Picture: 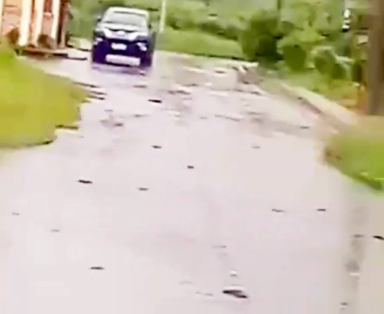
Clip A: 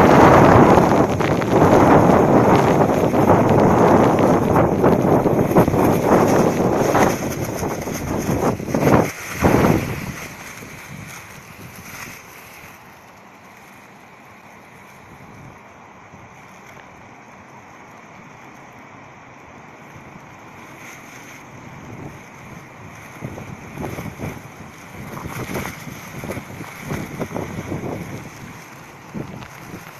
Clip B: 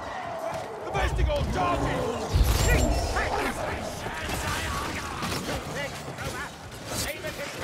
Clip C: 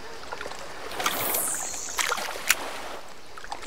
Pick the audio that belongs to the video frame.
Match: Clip A